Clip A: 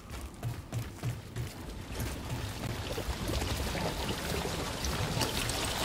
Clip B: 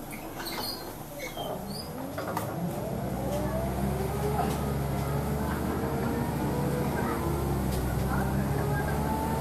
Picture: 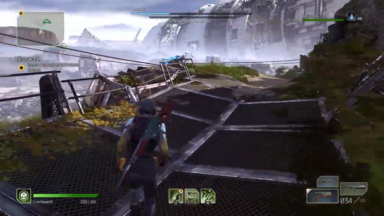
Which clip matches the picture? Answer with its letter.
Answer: A